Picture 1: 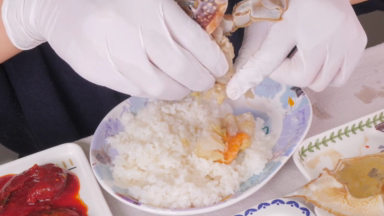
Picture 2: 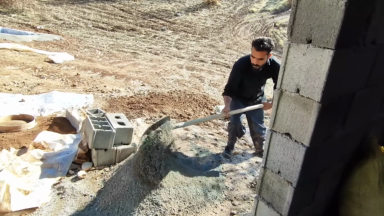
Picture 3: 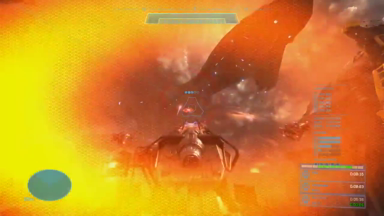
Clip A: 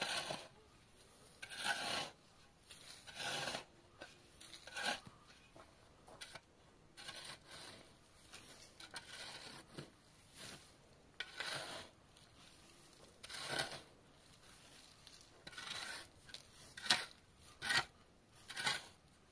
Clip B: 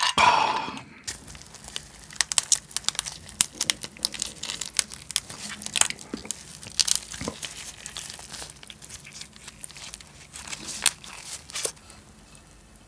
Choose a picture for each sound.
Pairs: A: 2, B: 1